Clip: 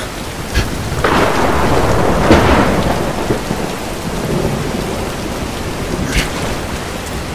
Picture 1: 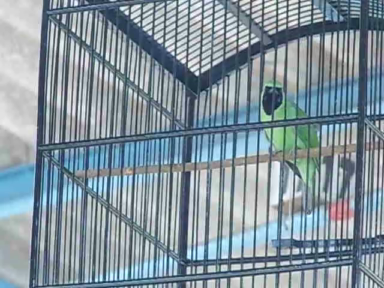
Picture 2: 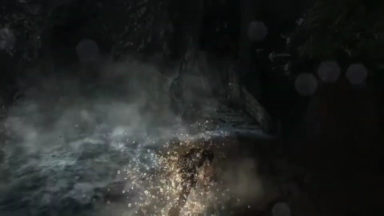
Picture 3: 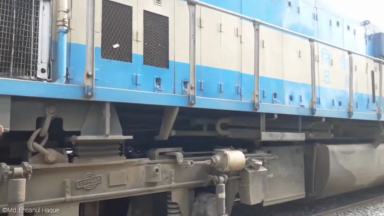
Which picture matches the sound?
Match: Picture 2